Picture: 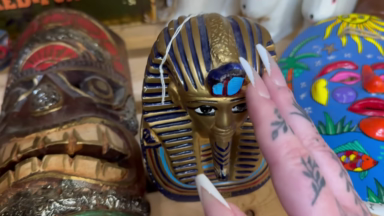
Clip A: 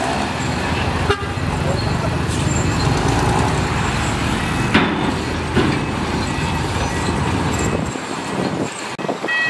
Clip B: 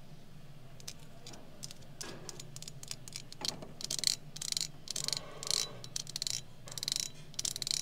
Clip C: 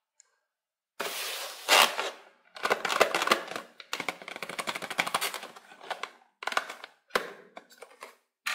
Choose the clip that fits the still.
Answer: B